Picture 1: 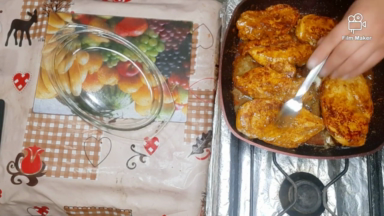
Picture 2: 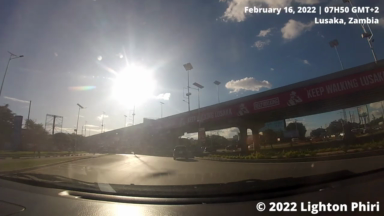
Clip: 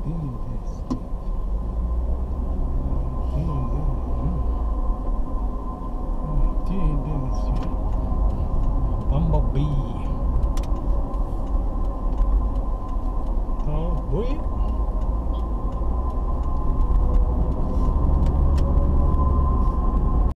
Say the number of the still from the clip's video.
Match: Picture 2